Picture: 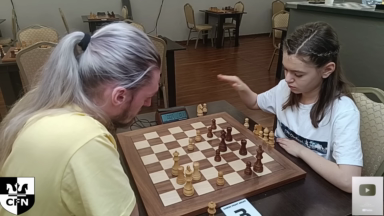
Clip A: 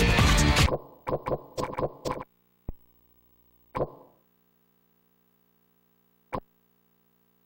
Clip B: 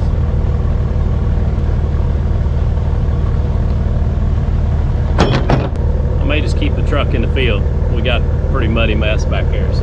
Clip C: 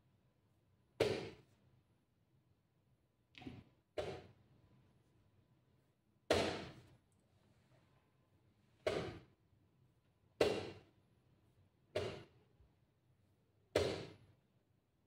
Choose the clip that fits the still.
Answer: C